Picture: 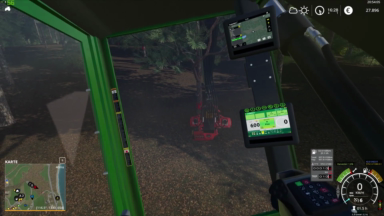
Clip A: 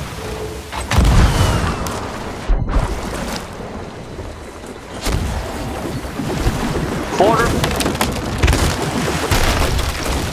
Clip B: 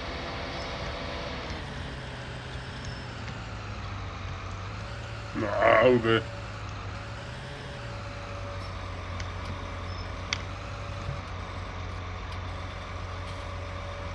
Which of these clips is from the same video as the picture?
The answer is B